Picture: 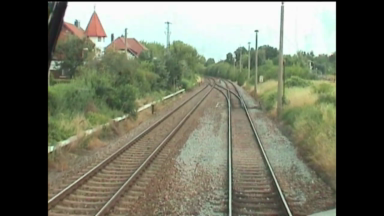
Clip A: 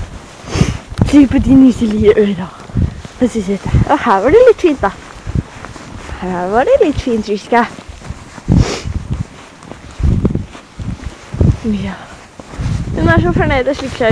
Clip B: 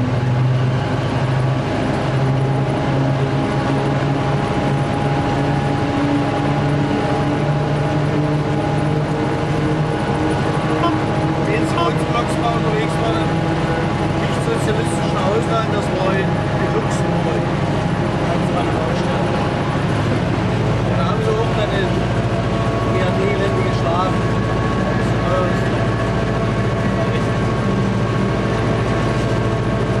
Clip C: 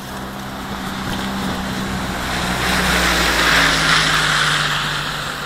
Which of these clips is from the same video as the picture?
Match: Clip B